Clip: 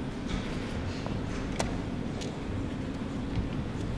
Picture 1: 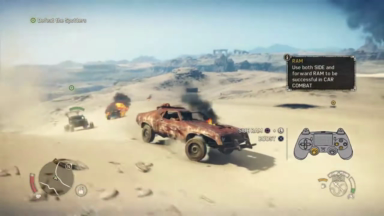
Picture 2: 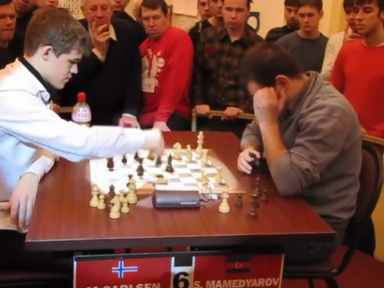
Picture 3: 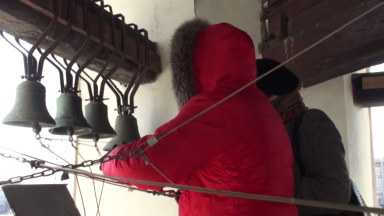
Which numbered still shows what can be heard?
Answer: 2